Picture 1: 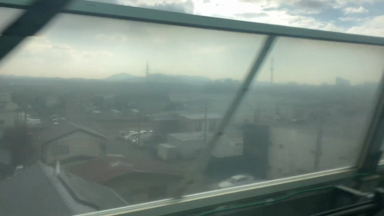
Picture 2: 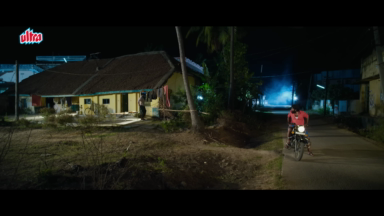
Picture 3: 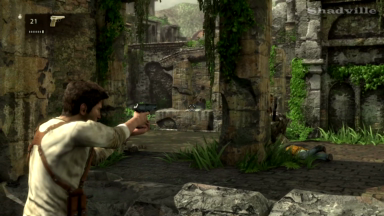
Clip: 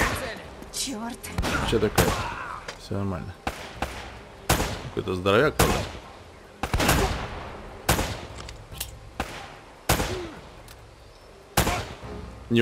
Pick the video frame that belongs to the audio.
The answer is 3